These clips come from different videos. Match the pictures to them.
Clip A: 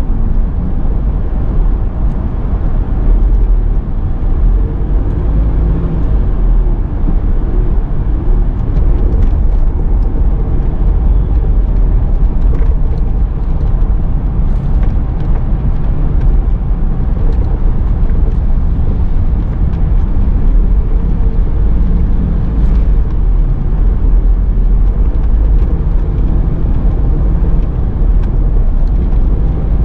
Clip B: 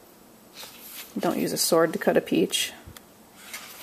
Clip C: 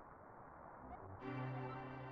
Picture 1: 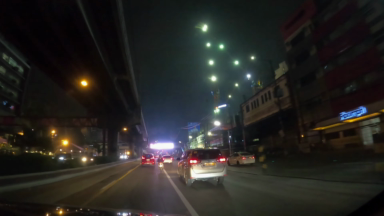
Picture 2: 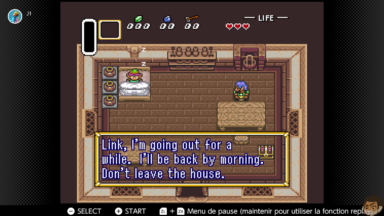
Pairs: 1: A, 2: C